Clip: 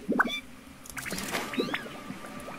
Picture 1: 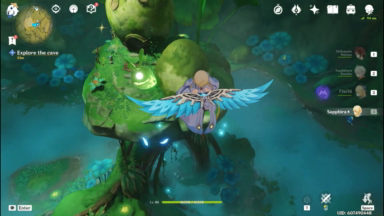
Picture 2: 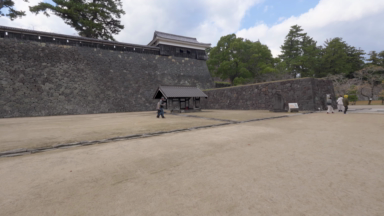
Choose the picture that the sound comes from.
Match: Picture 1